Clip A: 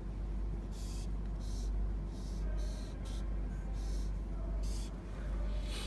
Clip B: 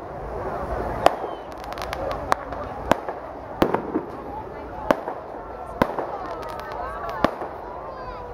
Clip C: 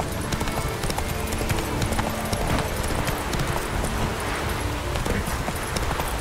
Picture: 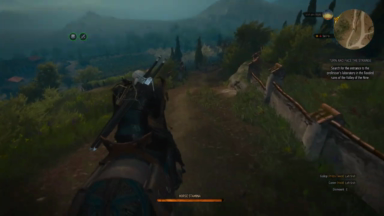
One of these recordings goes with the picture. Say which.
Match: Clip C